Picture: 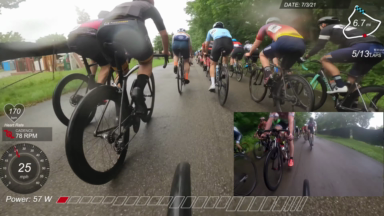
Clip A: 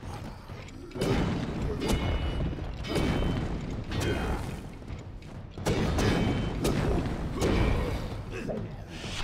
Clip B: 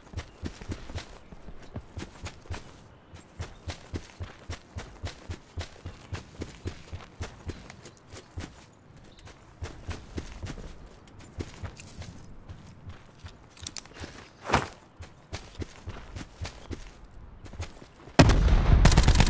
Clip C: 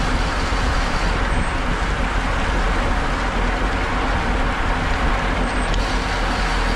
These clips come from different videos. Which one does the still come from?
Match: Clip C